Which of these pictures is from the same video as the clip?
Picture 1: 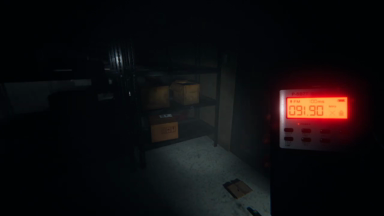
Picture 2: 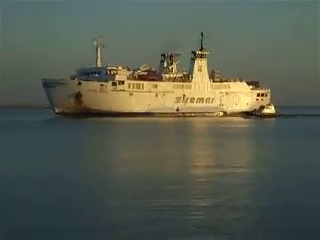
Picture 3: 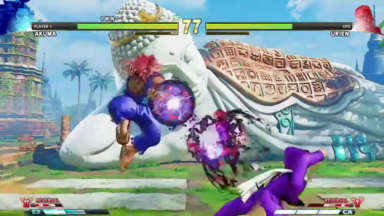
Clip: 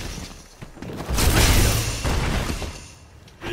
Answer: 3